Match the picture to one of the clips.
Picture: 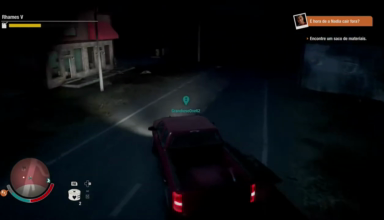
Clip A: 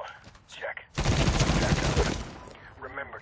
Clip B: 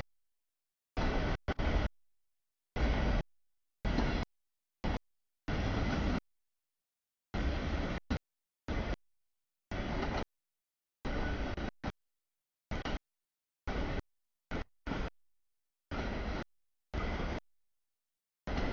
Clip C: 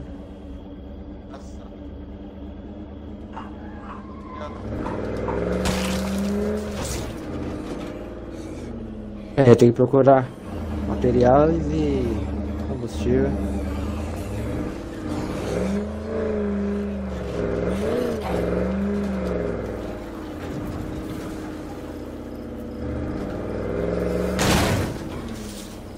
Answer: C